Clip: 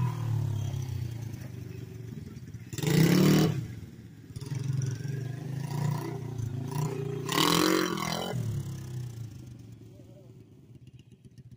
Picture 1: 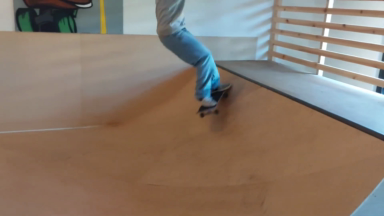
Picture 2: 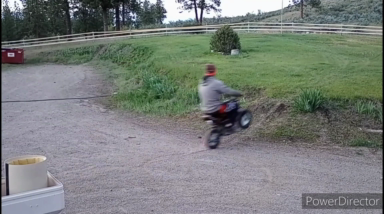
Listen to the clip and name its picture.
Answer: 2